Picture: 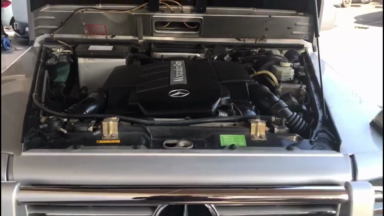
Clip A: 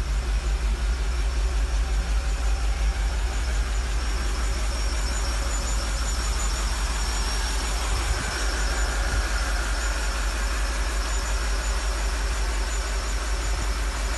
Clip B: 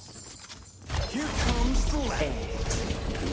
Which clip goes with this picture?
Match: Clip A